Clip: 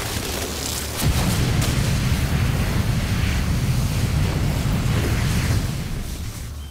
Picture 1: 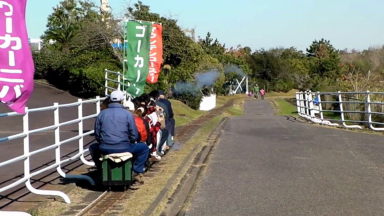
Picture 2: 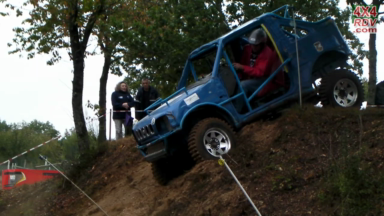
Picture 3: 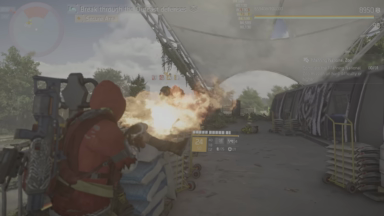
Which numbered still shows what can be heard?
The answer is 3